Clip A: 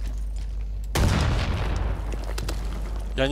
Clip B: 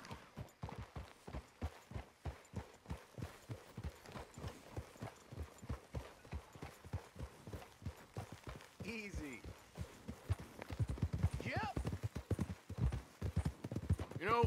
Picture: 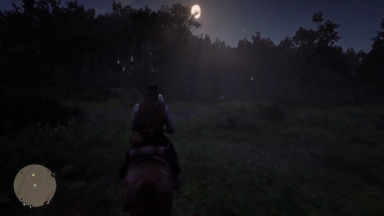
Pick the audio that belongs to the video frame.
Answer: B